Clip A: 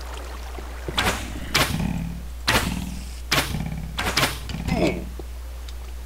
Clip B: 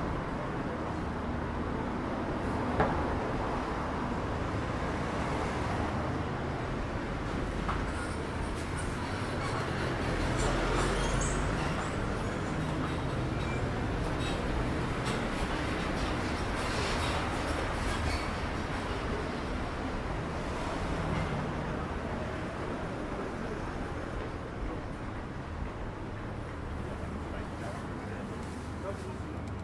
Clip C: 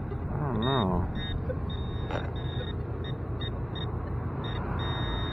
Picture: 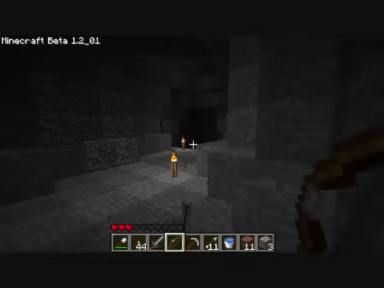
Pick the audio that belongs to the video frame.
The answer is A